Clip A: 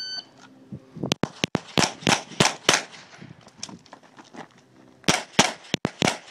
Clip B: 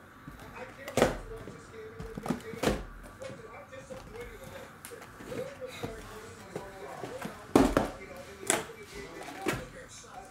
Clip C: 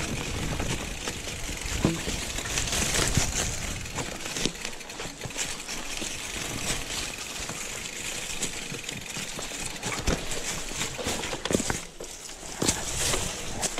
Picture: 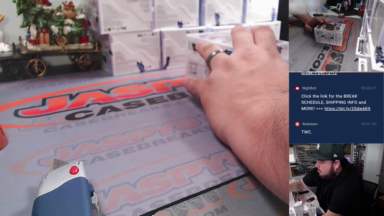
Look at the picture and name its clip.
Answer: B